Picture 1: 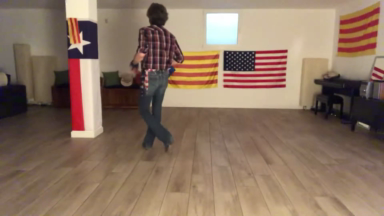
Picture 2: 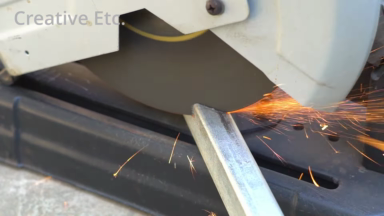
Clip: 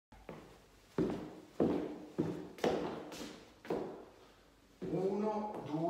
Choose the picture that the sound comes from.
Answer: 1